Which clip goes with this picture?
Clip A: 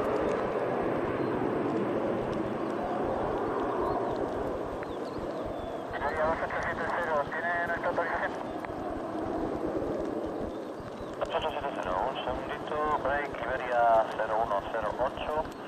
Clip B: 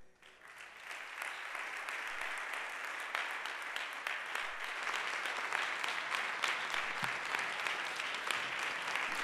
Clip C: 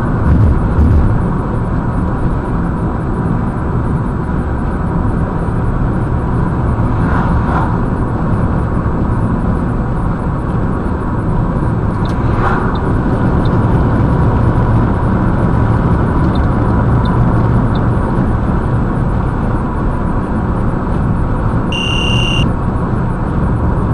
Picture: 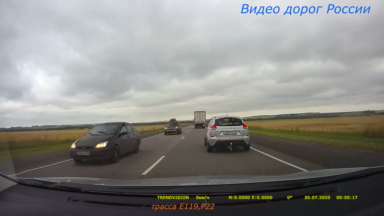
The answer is C